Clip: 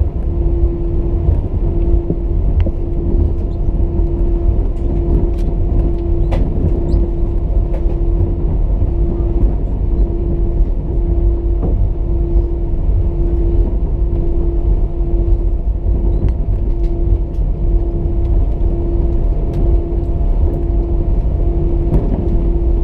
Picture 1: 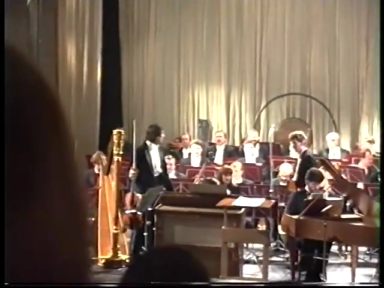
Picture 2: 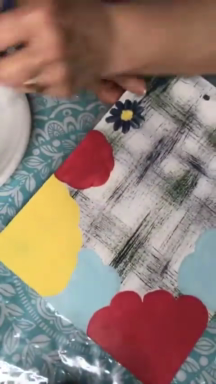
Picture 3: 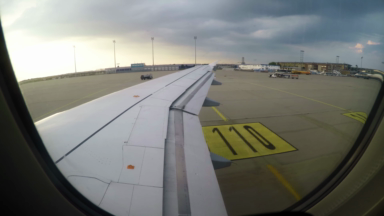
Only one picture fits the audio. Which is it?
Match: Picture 3